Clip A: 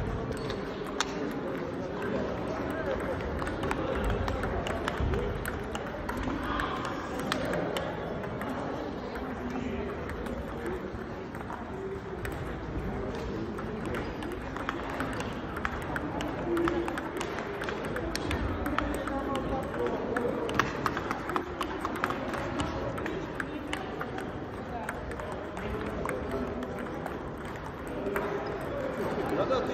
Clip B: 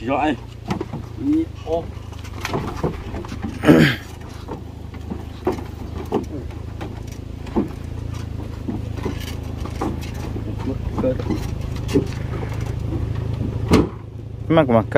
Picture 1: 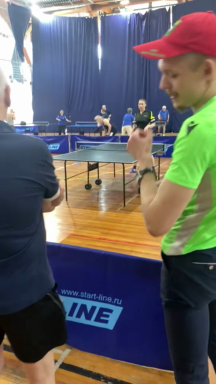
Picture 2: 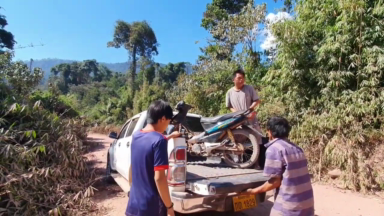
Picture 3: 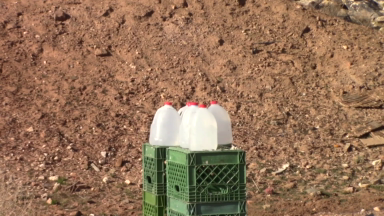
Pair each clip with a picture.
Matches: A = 1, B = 2